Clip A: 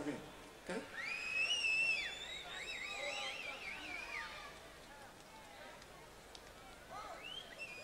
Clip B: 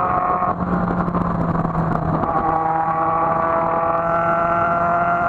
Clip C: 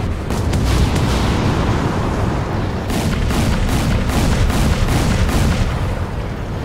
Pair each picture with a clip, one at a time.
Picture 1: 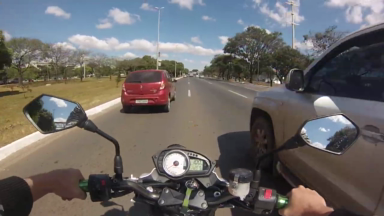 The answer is B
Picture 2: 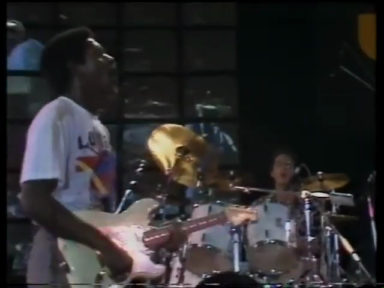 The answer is A